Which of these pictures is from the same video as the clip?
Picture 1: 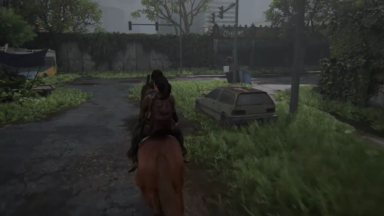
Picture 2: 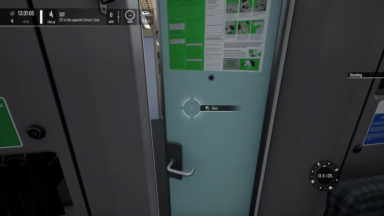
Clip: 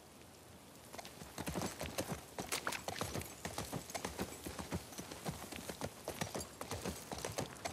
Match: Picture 1